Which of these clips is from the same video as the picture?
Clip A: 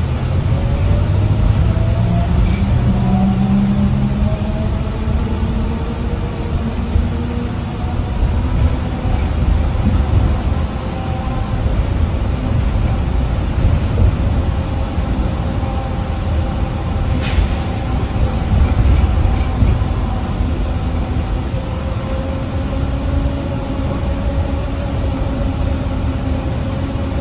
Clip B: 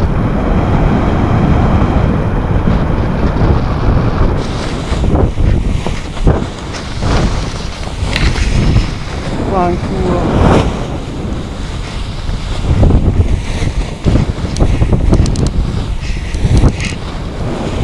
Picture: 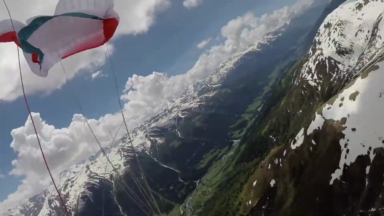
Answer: B